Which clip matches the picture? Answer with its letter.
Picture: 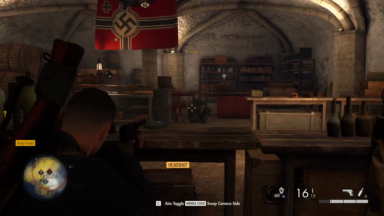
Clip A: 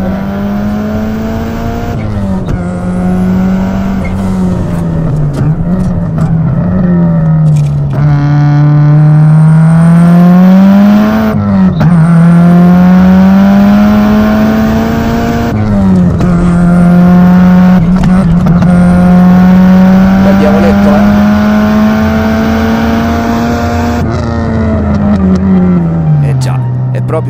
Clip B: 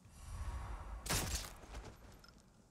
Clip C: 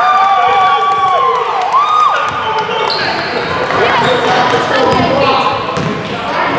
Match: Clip B